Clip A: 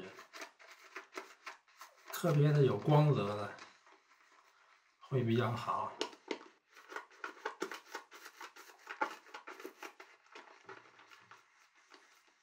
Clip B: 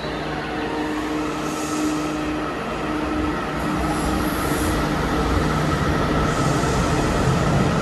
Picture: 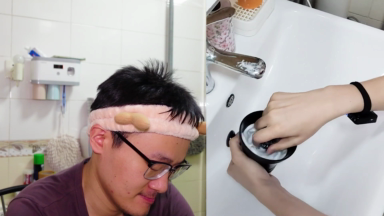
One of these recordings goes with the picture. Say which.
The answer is A